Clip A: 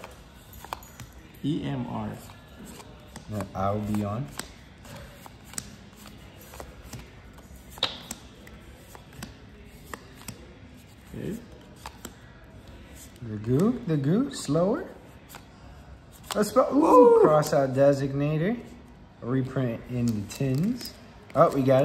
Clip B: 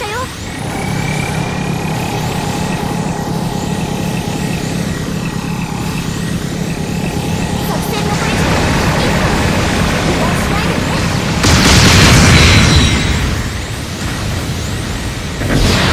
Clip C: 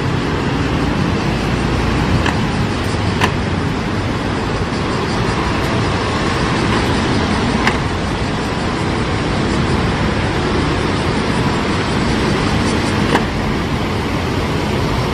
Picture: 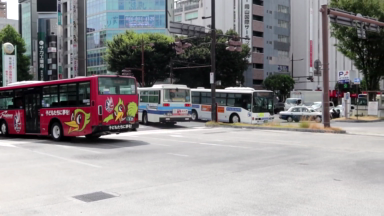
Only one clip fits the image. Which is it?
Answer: C